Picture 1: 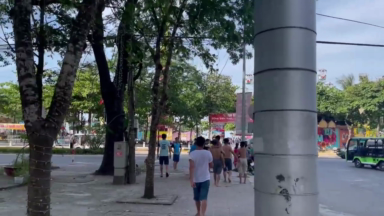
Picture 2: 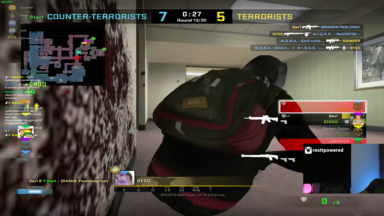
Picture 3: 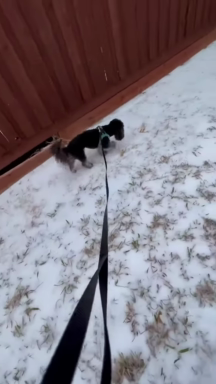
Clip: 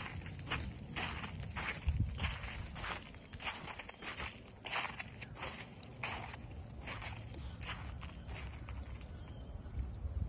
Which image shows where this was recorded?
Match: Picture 3